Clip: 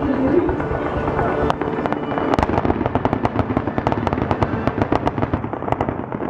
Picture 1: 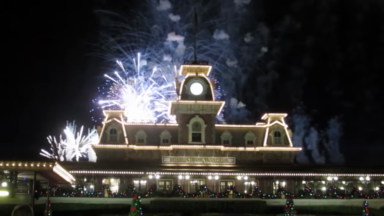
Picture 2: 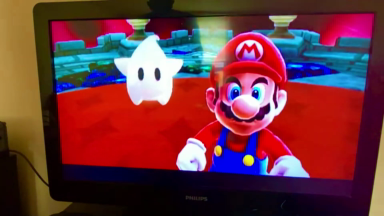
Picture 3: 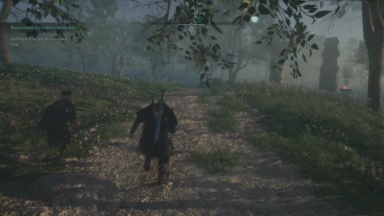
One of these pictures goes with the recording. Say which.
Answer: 1